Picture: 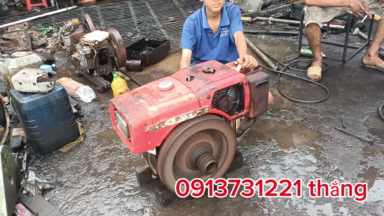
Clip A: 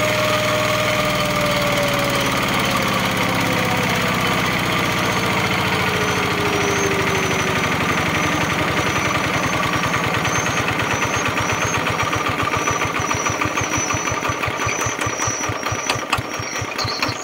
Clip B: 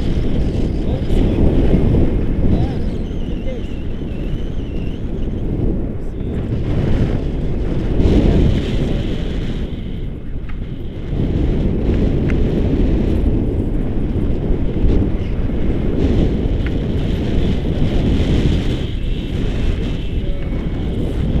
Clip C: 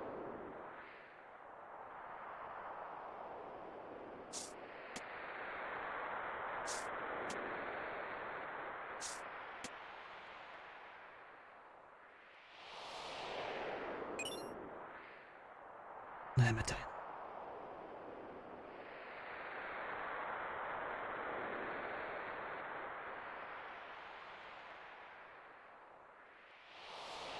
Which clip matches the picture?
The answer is A